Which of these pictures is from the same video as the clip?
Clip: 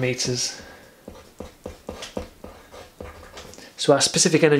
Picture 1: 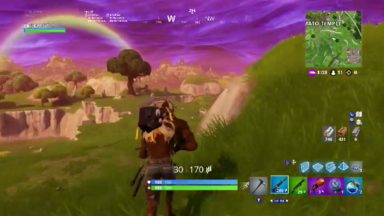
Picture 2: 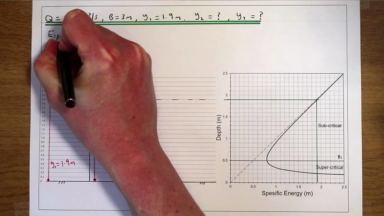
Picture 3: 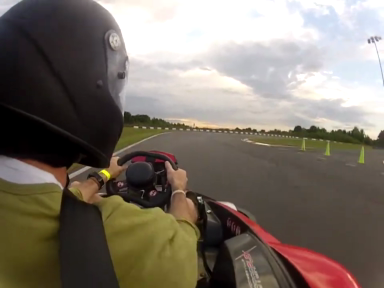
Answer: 2